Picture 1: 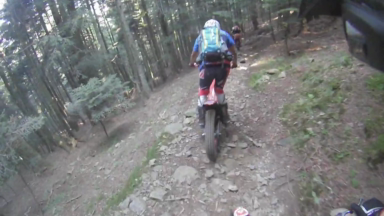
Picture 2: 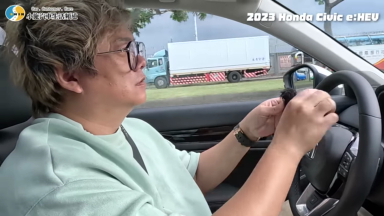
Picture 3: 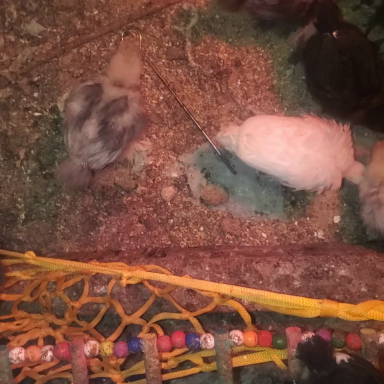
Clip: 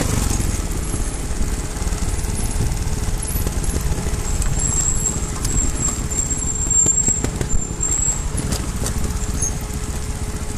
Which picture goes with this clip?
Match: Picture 1